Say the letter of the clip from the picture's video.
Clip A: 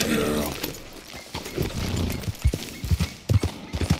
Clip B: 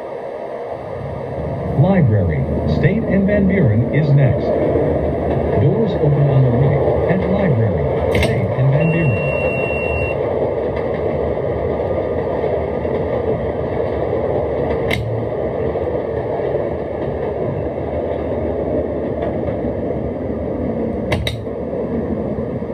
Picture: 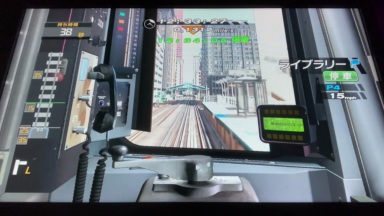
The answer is B